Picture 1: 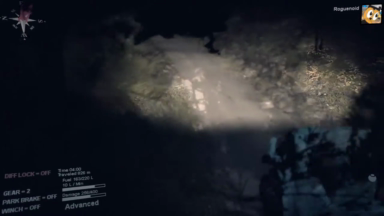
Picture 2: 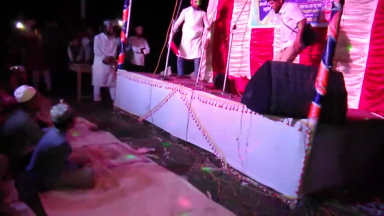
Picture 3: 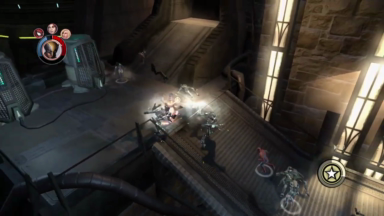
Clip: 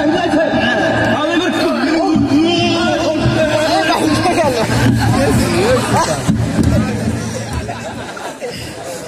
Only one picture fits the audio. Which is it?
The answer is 2